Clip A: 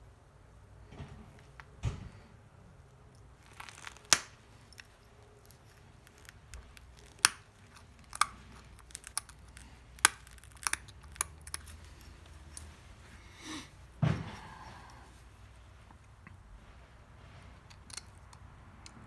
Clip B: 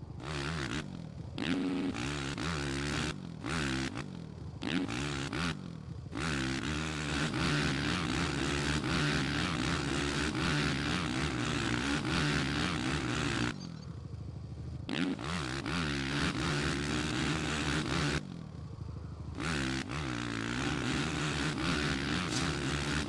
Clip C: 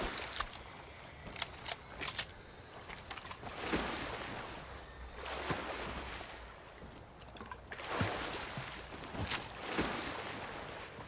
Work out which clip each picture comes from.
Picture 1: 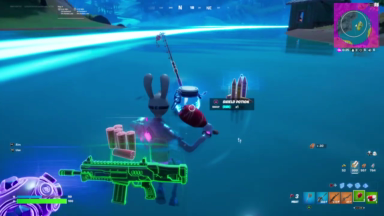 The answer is C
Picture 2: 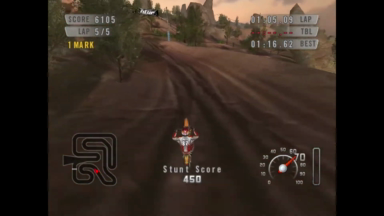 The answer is B